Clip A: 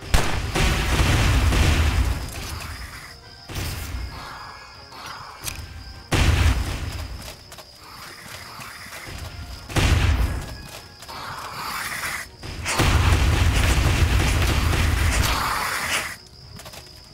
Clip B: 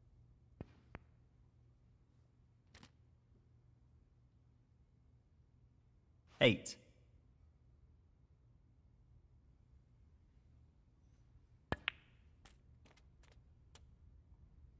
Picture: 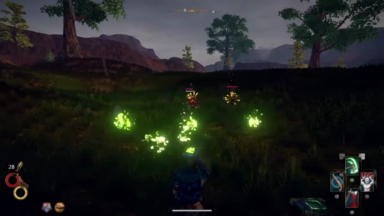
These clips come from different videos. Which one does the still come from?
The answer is A